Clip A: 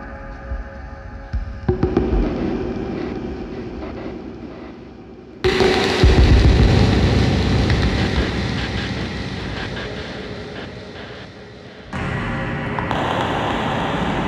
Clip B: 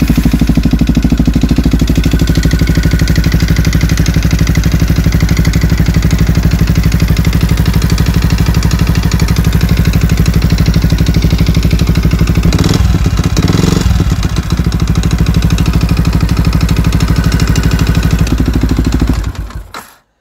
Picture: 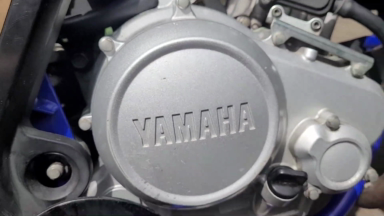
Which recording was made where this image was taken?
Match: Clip B